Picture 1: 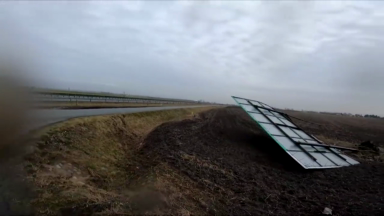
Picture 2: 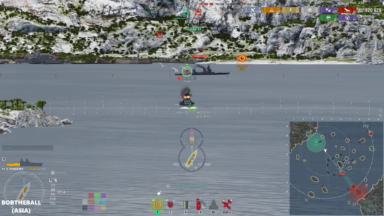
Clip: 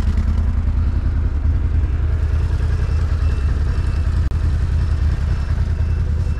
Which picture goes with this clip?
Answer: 1